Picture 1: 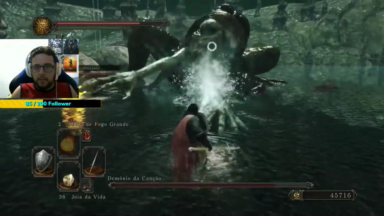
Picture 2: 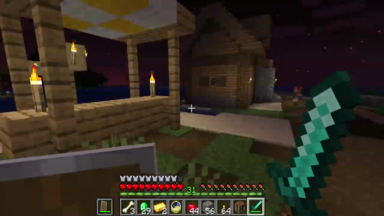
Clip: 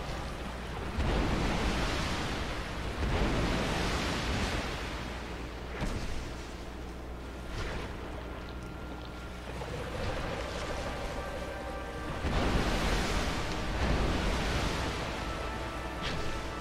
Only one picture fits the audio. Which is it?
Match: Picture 1